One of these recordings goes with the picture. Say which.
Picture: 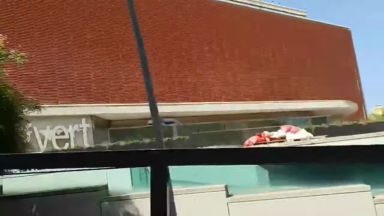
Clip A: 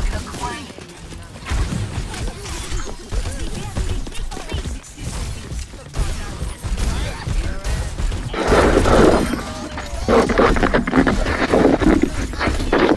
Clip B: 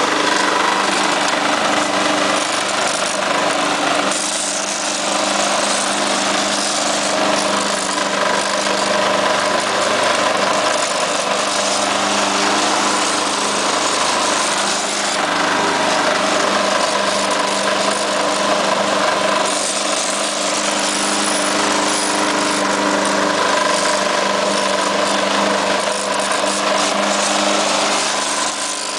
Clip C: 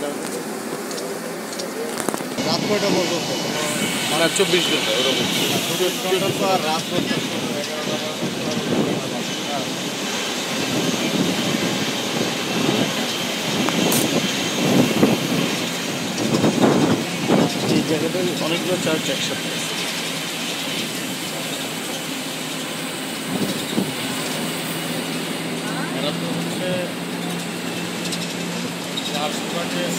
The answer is C